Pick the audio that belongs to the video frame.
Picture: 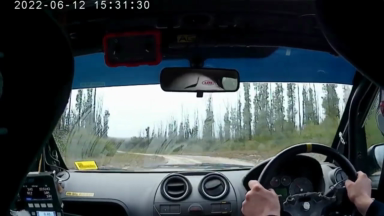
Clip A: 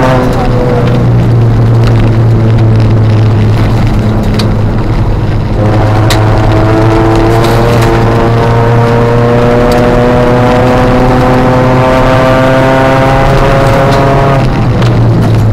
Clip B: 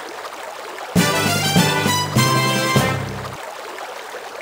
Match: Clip A